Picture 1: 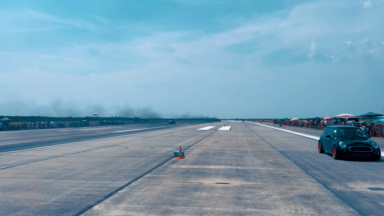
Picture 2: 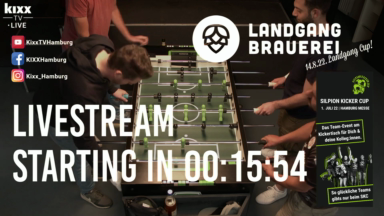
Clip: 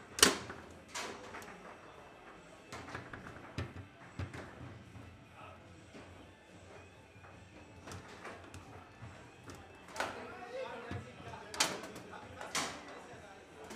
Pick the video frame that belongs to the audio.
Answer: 2